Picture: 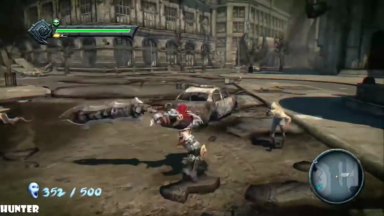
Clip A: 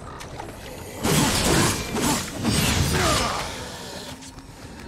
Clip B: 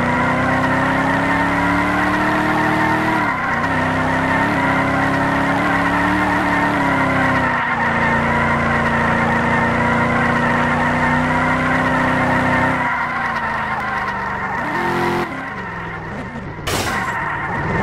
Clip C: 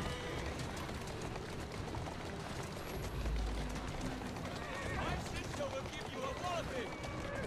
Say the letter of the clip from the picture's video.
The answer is A